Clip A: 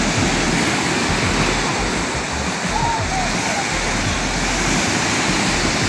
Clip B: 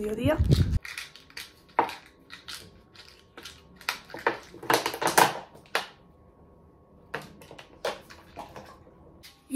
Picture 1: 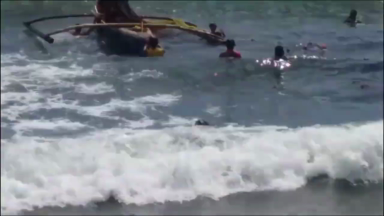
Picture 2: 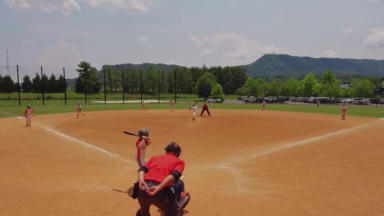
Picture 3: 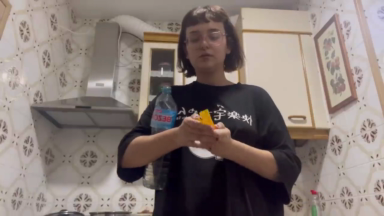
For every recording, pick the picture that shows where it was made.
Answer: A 1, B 3